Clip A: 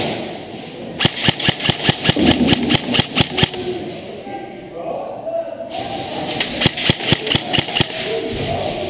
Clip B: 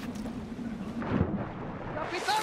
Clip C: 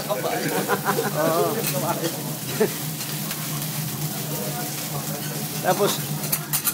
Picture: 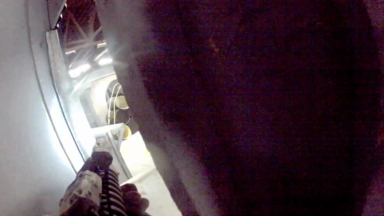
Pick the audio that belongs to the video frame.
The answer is A